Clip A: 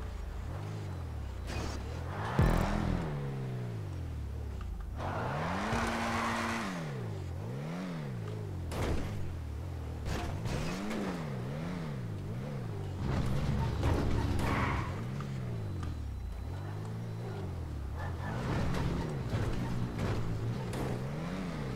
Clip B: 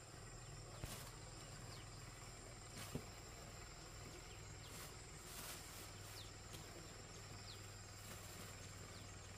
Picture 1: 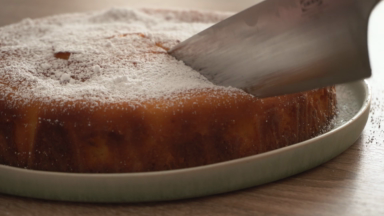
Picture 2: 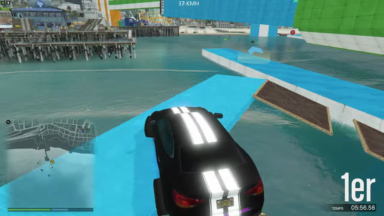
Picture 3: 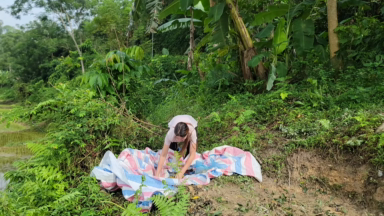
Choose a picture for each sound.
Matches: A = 2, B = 3